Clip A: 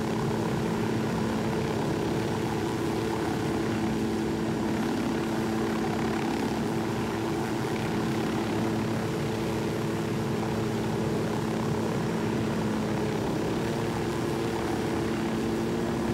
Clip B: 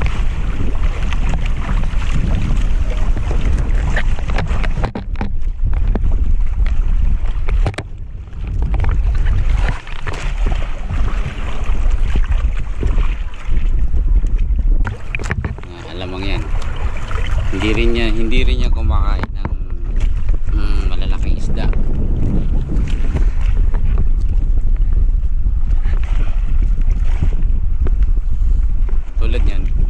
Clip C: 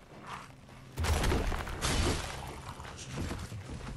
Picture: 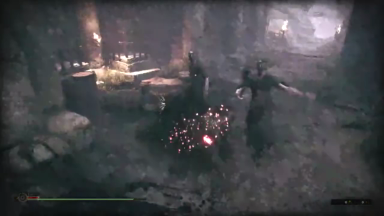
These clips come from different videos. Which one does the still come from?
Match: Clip C